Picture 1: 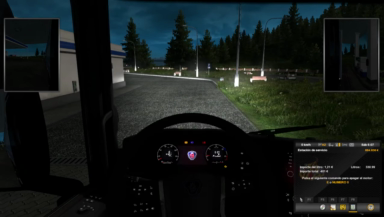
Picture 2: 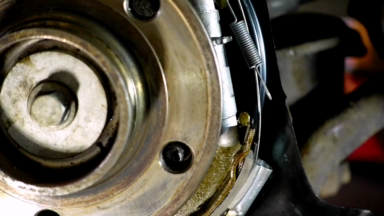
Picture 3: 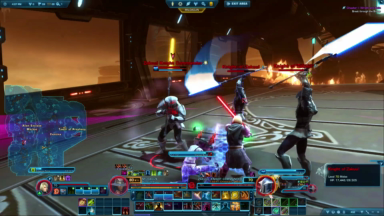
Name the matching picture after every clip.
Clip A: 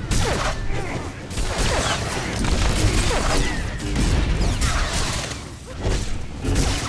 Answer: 3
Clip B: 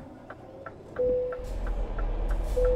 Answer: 1